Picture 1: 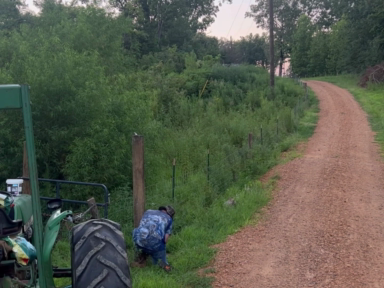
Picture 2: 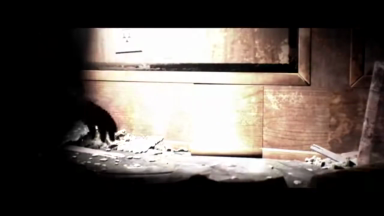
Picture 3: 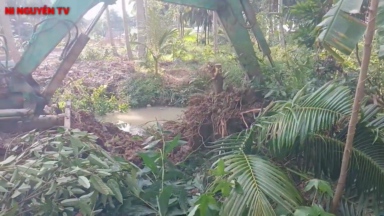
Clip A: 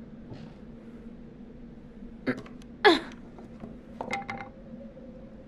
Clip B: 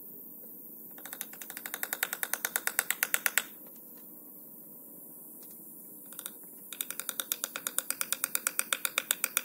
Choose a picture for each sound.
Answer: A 2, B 1